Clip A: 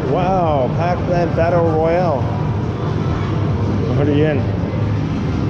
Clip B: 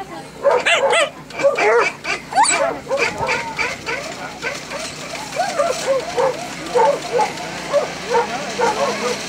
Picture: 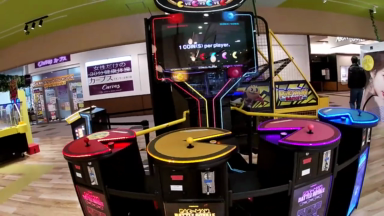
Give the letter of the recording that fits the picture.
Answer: A